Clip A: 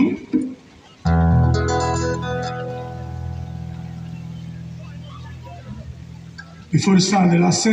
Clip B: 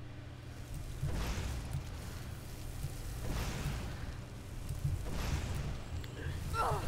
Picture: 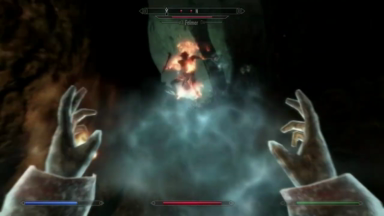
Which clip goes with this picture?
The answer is B